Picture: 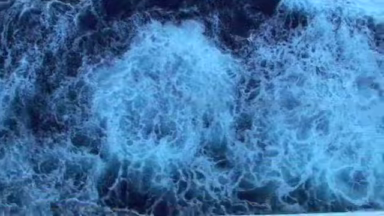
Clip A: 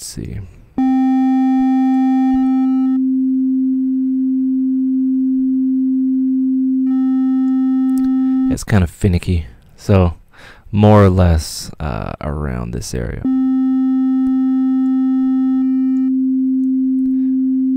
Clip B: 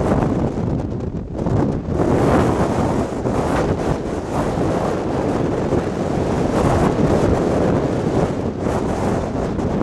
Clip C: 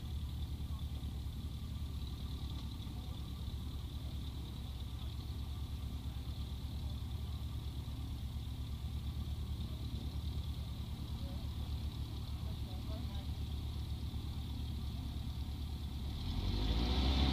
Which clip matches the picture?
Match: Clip B